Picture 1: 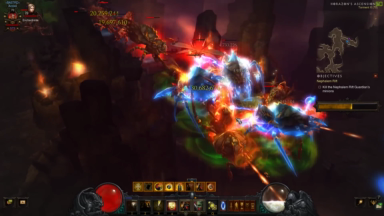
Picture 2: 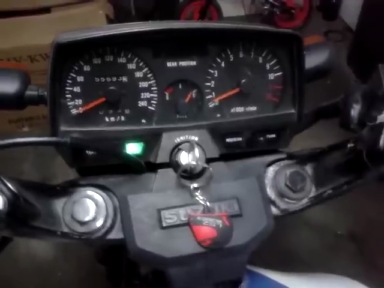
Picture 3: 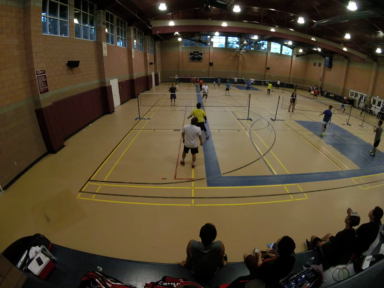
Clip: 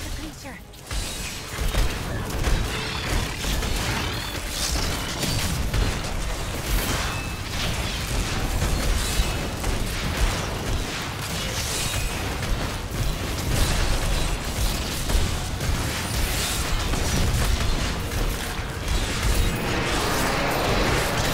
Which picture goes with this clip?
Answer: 1